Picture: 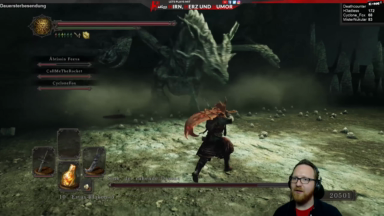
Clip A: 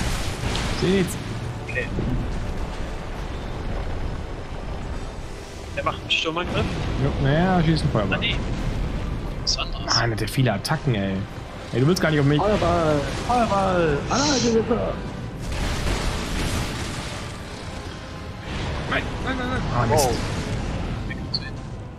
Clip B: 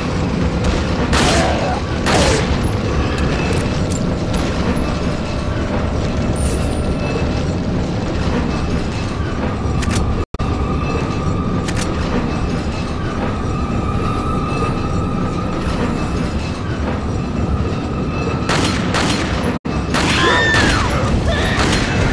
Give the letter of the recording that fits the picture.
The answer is A